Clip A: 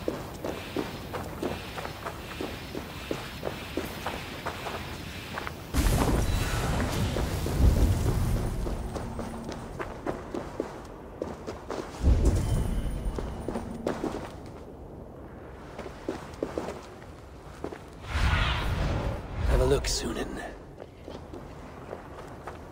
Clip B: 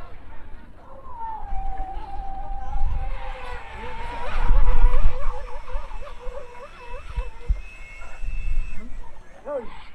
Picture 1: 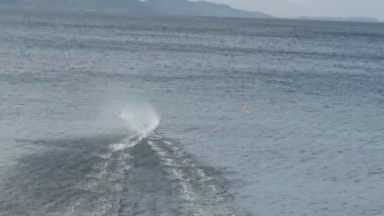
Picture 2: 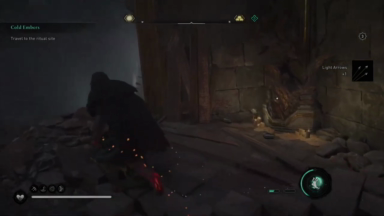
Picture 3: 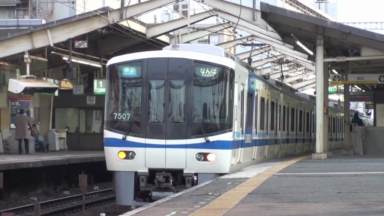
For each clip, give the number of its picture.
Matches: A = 2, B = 1